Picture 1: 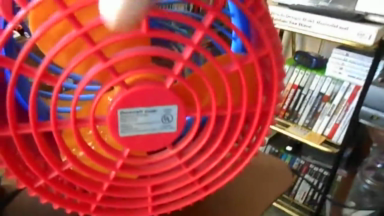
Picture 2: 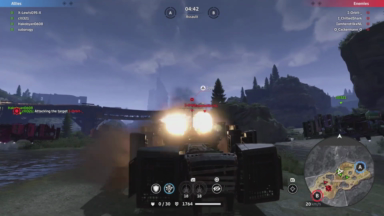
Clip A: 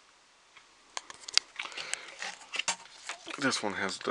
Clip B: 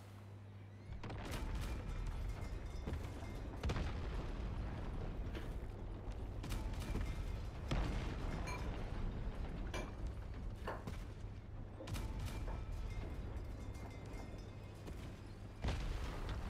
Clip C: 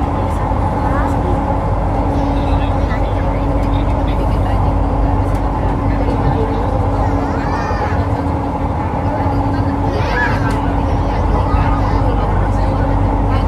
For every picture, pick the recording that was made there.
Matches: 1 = A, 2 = B